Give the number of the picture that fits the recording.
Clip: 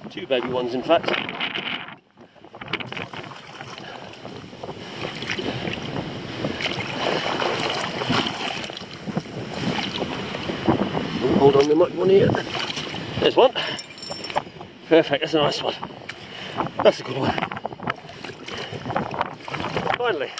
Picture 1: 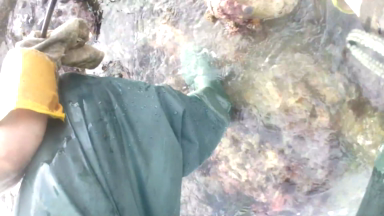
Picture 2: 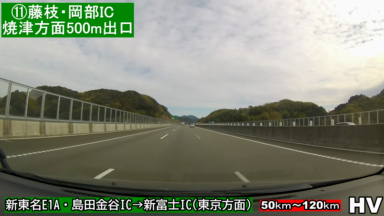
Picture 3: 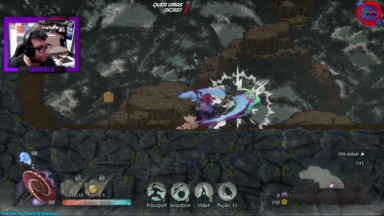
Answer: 1